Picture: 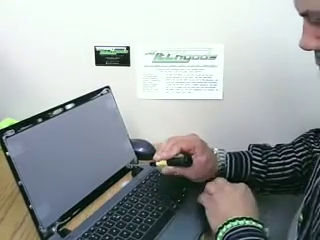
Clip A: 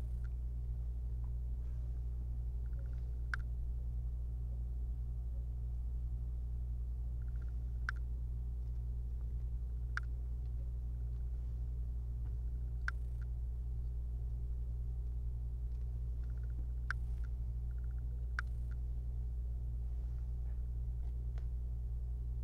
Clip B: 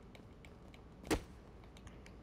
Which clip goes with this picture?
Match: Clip A